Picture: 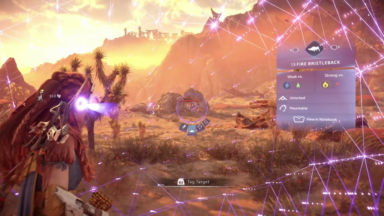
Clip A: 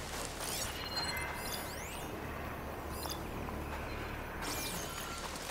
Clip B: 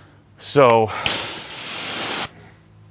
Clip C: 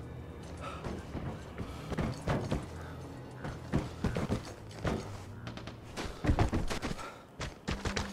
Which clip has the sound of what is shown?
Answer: A